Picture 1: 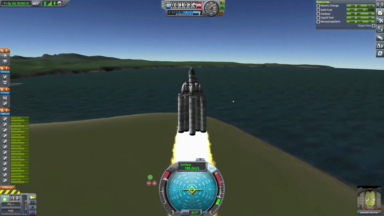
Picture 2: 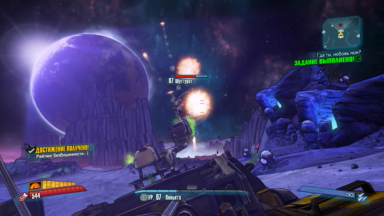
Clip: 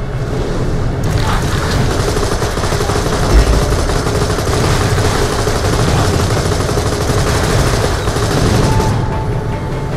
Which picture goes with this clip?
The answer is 2